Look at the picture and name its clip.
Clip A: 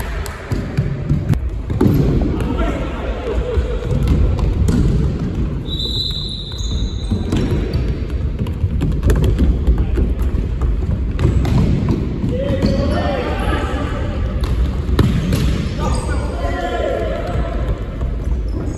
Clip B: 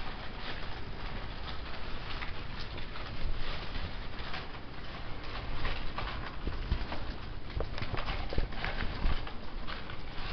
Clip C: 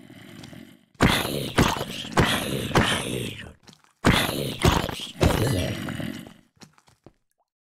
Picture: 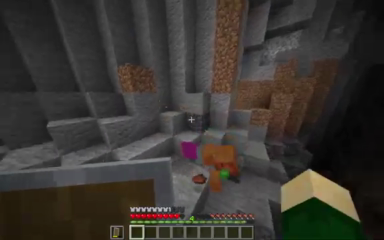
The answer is C